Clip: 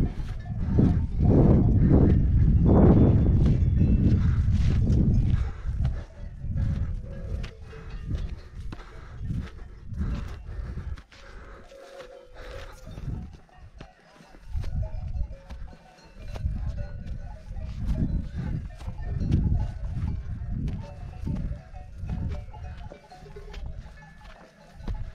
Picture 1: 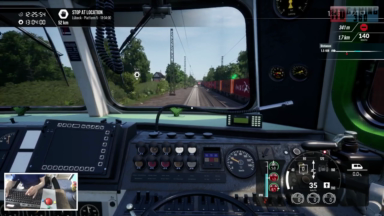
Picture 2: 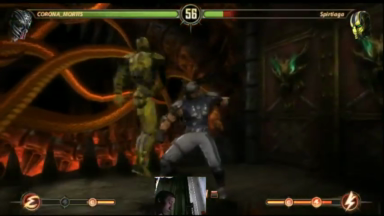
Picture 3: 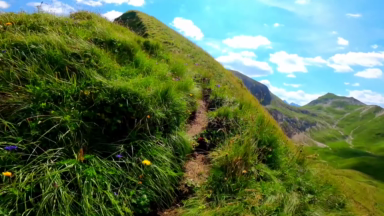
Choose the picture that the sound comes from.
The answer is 3